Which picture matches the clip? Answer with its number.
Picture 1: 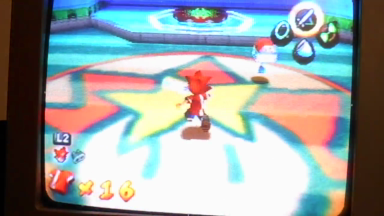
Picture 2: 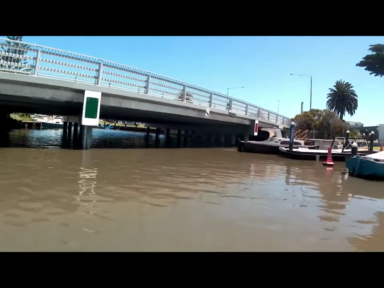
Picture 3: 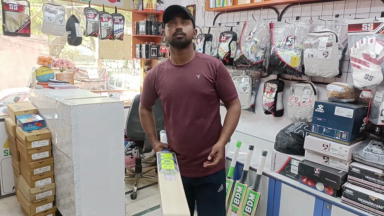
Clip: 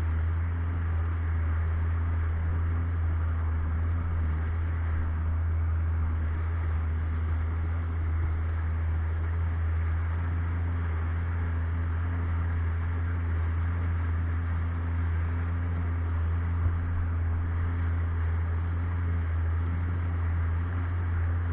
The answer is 2